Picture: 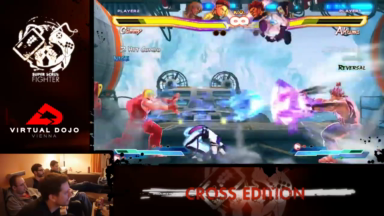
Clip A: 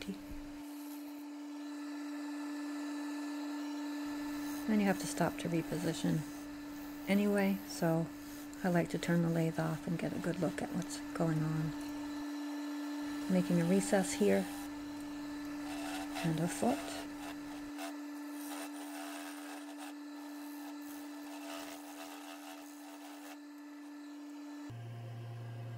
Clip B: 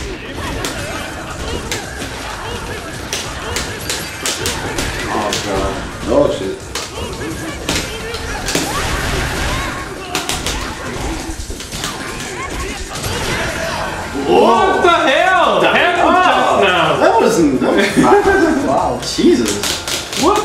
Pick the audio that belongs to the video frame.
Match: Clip B